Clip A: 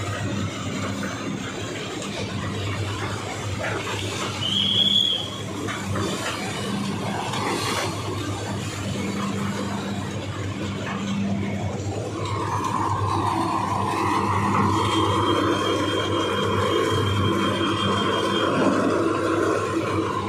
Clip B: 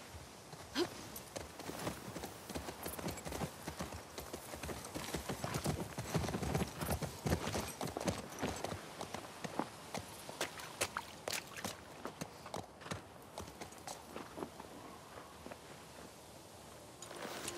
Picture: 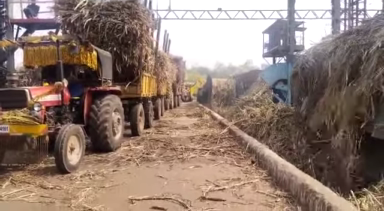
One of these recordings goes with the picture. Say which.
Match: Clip A